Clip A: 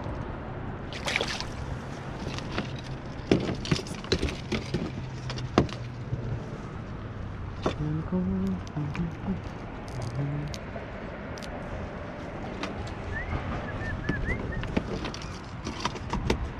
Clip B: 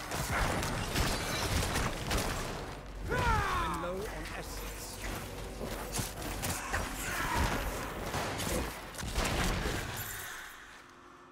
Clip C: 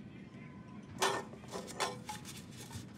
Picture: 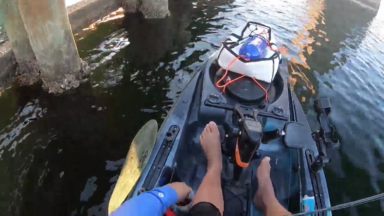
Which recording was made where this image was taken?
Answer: A